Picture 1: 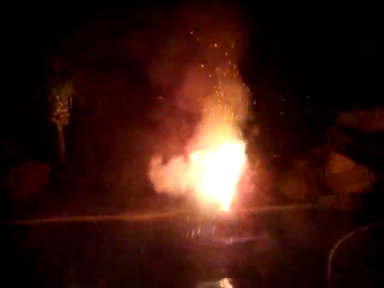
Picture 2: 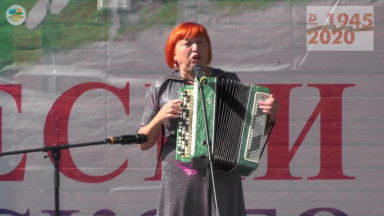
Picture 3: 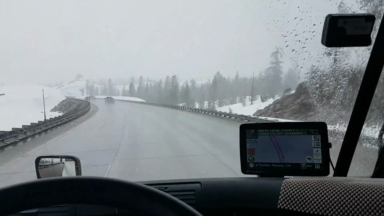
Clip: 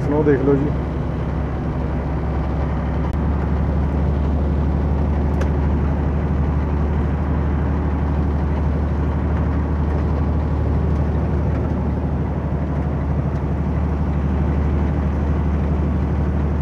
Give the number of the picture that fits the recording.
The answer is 3